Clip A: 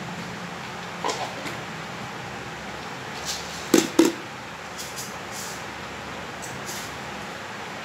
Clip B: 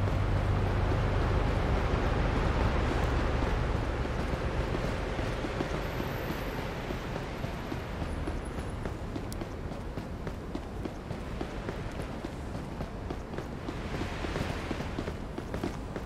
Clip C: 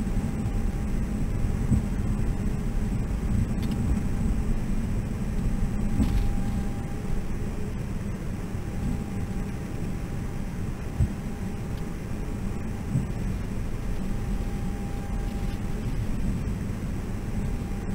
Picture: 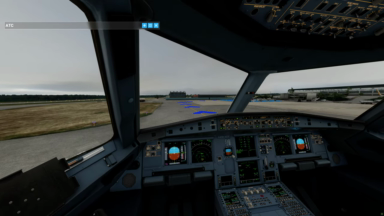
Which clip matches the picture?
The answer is C